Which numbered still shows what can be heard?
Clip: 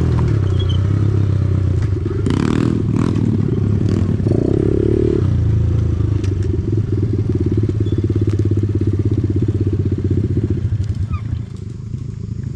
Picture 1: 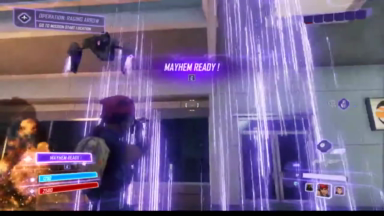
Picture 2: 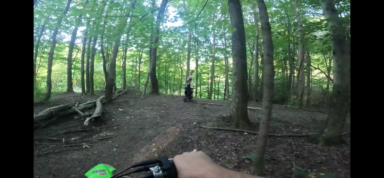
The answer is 2